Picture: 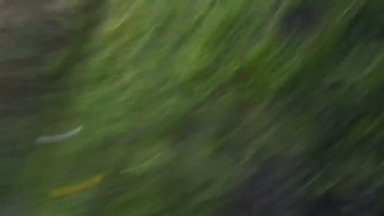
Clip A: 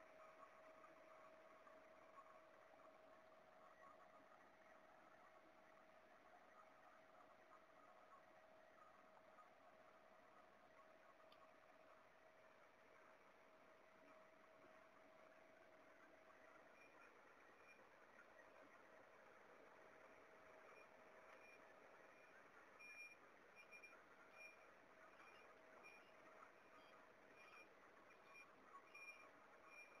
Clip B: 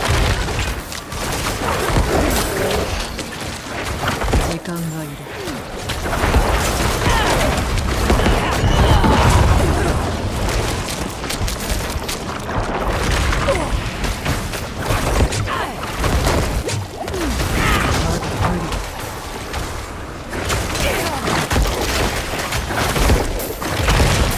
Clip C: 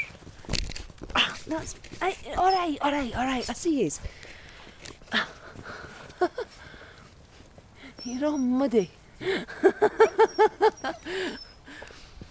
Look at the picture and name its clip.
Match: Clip C